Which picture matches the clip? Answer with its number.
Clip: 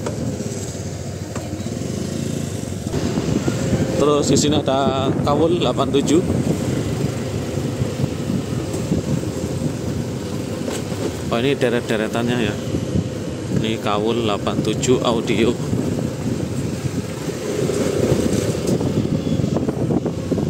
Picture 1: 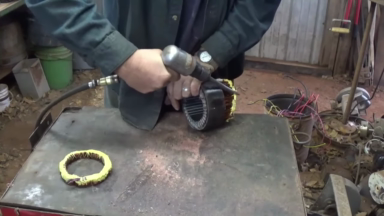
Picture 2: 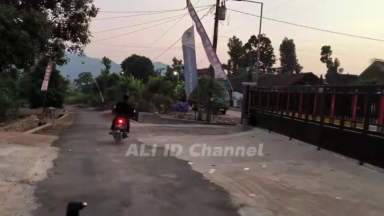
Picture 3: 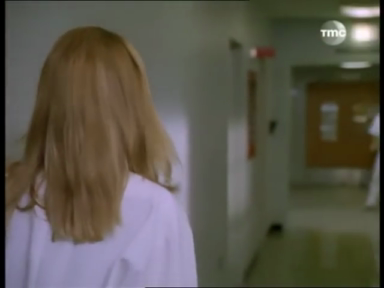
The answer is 2